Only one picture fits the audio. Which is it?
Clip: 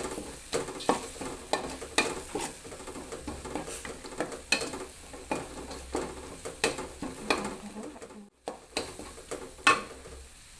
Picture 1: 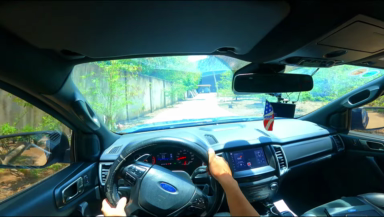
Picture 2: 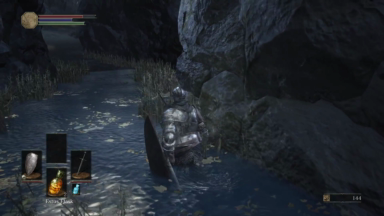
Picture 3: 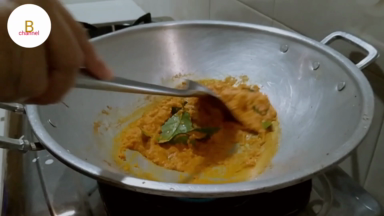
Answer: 3